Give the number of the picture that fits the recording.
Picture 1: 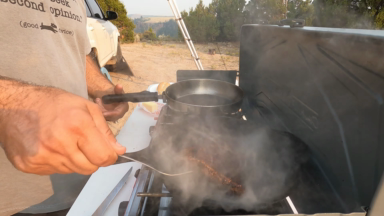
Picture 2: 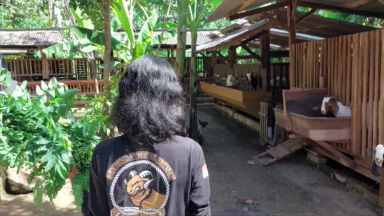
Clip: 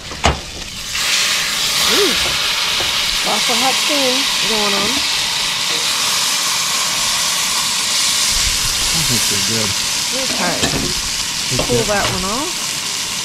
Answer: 1